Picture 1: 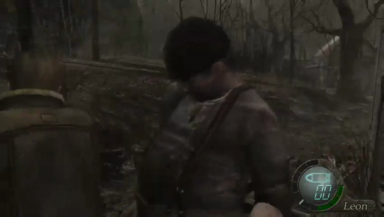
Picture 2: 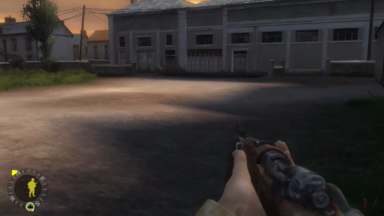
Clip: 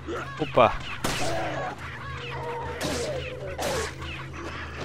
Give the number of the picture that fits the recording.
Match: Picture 1